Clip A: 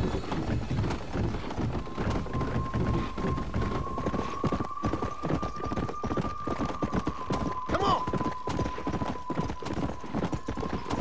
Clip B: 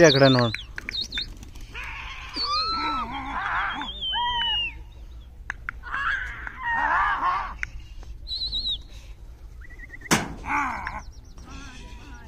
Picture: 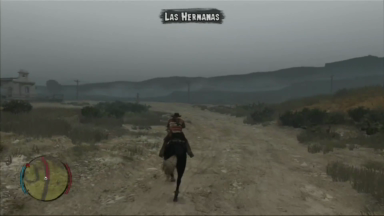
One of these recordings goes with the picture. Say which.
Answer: A